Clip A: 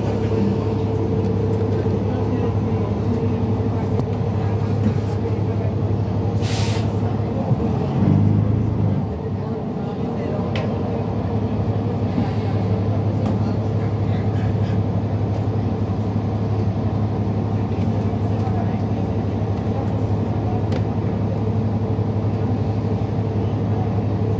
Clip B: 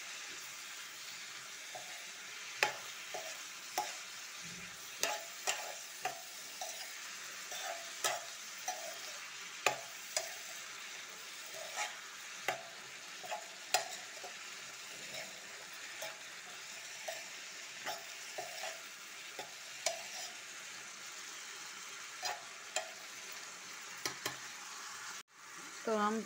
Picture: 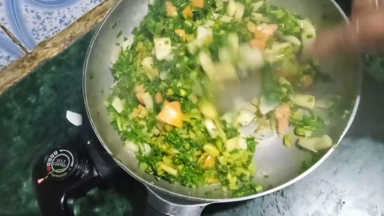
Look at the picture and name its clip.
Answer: B